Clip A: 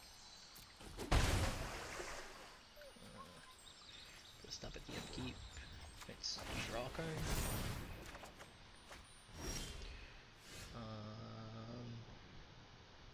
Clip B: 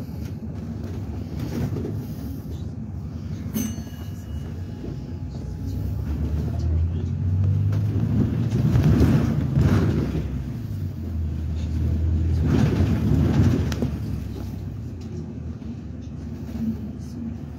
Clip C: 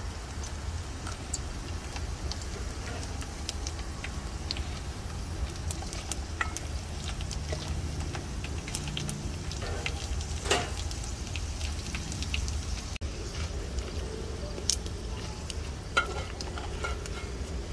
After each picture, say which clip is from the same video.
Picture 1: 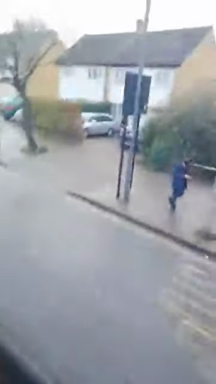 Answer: B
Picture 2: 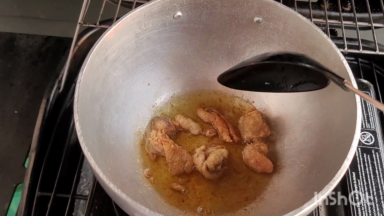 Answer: C